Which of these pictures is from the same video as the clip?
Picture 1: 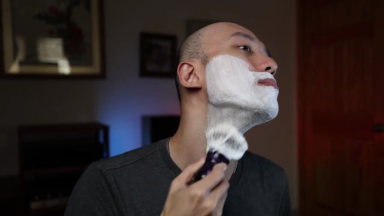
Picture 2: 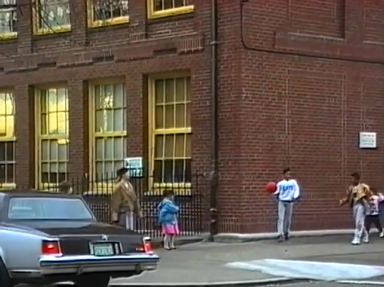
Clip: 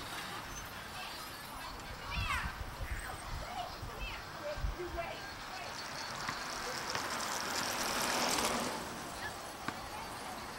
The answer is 2